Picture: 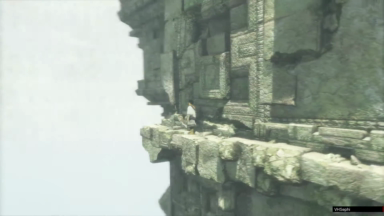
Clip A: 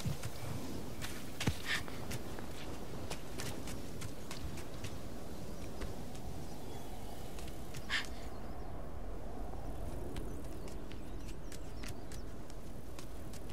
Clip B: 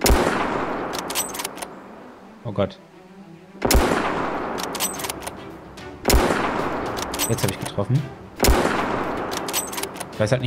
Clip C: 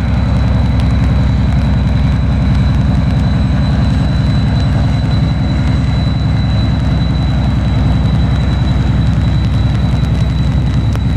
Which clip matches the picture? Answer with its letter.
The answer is A